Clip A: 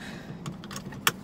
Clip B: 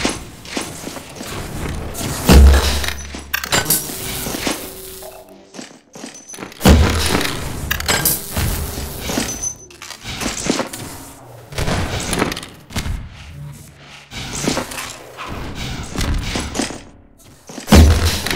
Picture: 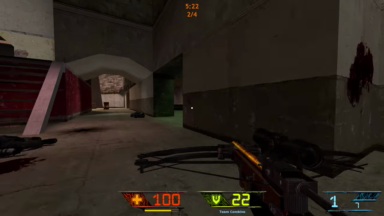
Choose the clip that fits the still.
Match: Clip B